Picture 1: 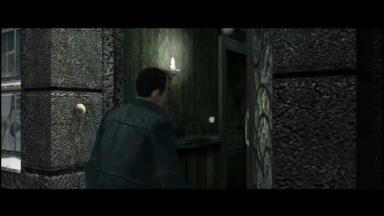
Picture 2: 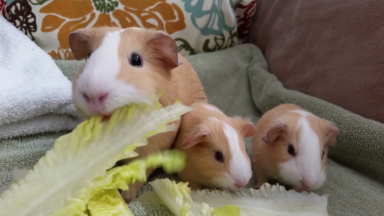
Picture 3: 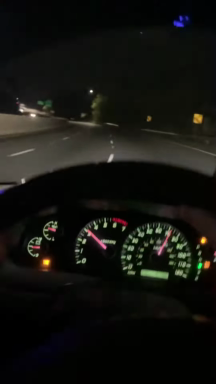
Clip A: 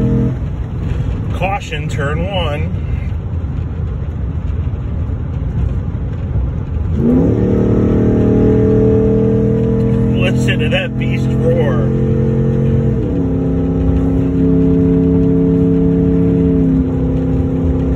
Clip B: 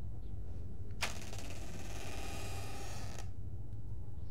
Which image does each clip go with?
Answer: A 3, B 1